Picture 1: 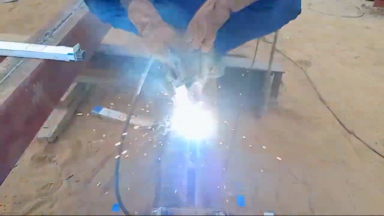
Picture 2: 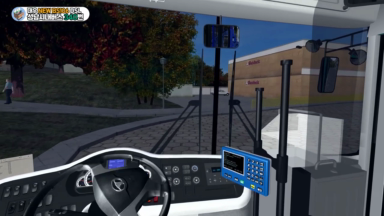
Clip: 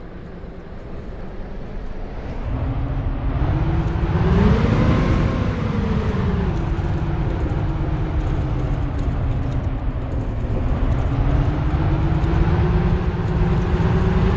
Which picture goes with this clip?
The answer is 2